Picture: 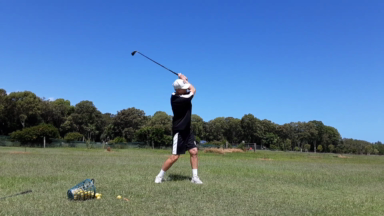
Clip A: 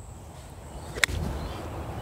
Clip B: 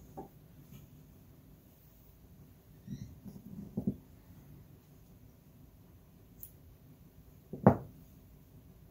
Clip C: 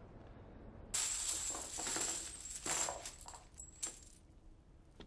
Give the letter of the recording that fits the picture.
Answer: A